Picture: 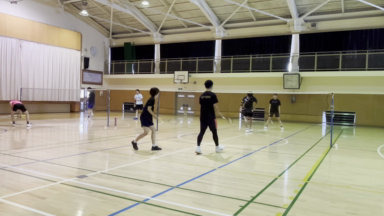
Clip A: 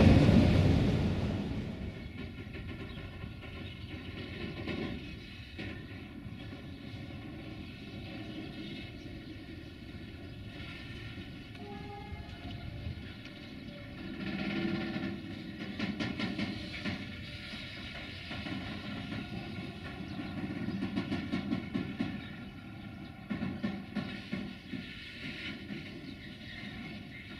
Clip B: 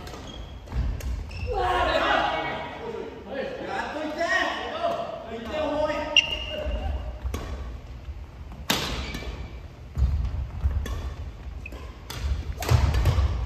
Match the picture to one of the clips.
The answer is B